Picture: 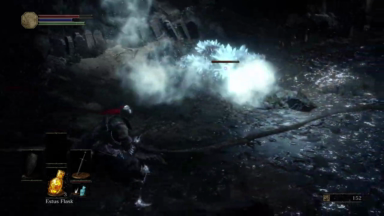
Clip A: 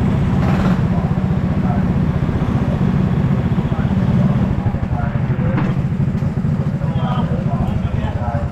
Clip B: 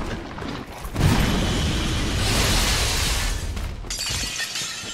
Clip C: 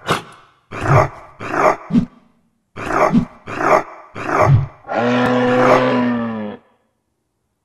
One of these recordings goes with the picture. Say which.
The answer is B